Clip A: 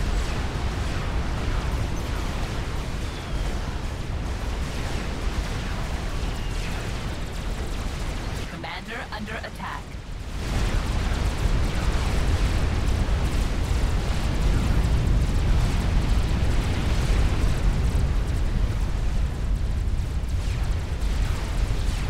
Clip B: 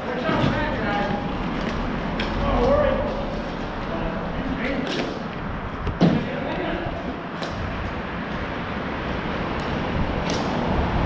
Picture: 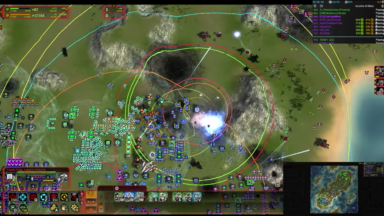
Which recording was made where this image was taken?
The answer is A